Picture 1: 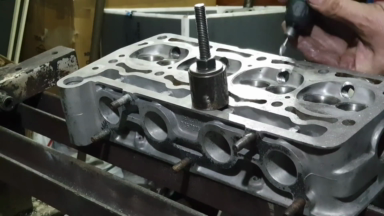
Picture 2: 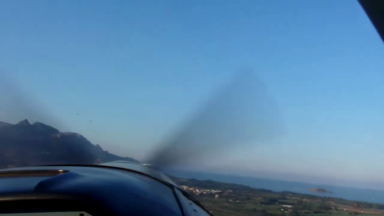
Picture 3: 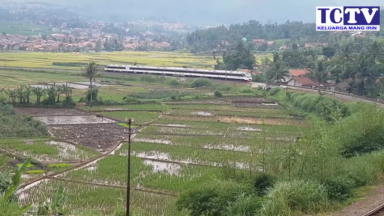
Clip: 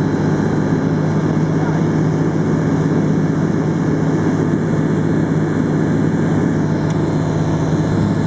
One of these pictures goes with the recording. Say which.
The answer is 2